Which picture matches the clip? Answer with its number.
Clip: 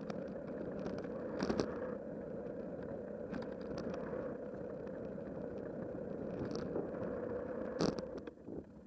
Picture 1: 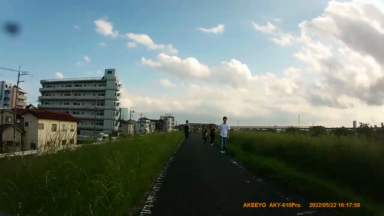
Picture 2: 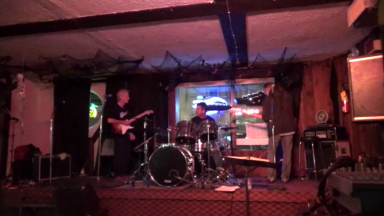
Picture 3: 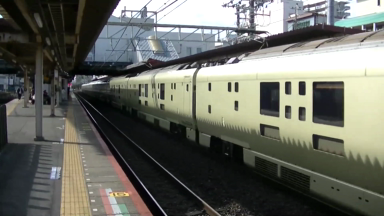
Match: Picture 1